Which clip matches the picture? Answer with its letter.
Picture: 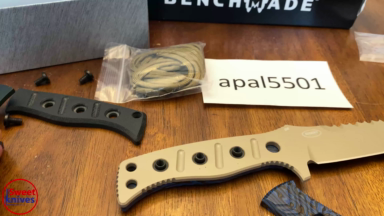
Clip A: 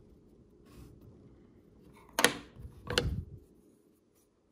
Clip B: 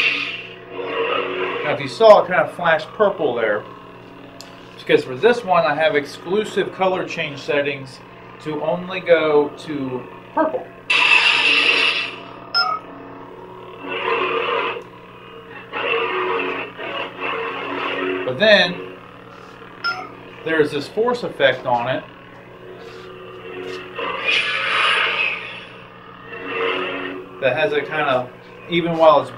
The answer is A